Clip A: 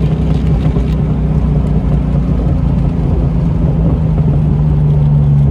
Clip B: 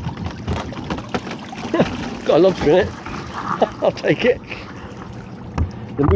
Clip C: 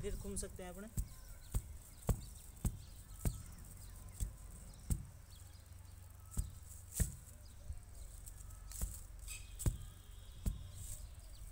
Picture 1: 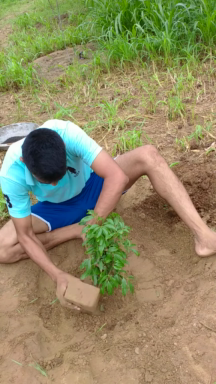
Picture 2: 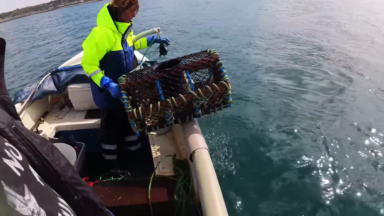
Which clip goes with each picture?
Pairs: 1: C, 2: B